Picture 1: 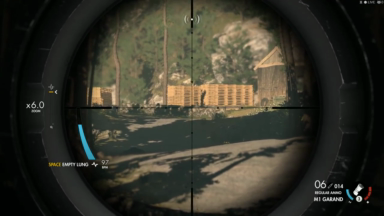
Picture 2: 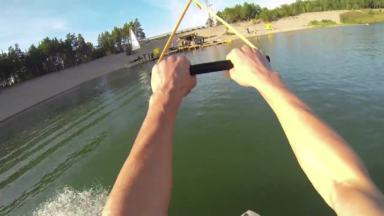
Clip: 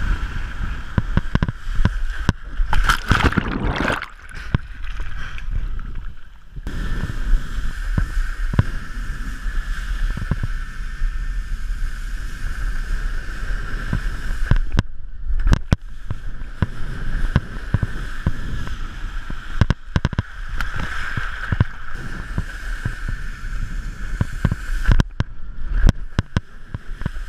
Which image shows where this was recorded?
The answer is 2